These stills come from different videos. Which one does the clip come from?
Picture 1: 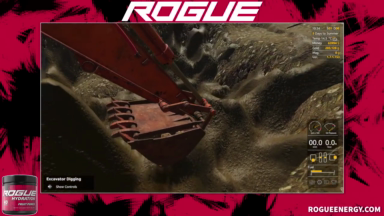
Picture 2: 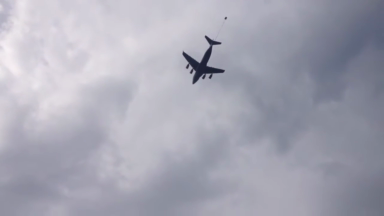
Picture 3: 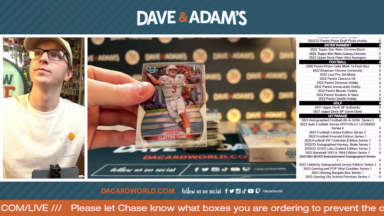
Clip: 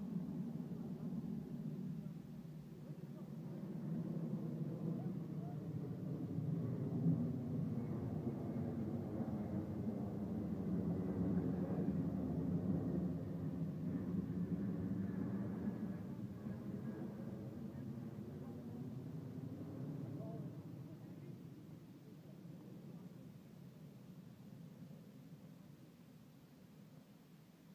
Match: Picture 2